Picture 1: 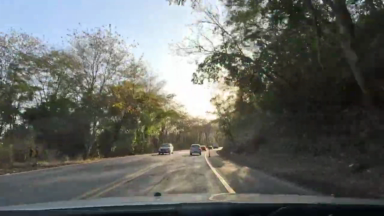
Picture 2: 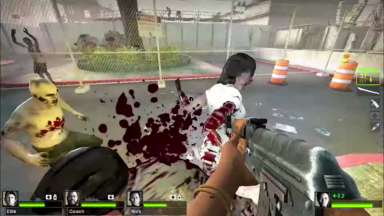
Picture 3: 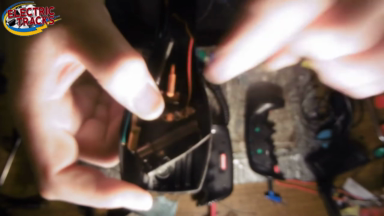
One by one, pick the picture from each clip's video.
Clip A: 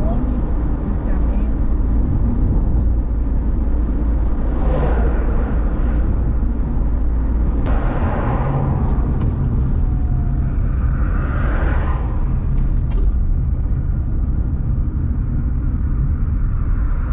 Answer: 1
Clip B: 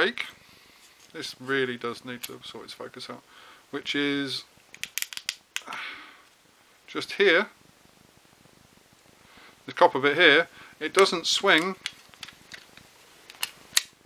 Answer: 3